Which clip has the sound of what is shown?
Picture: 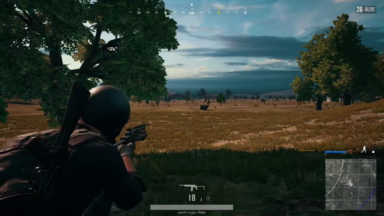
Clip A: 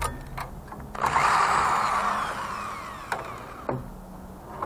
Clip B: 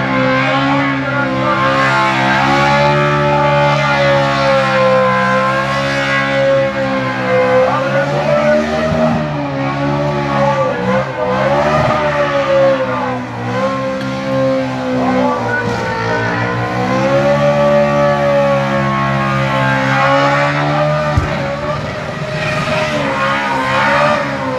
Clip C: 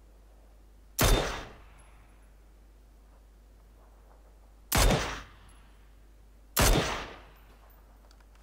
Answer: C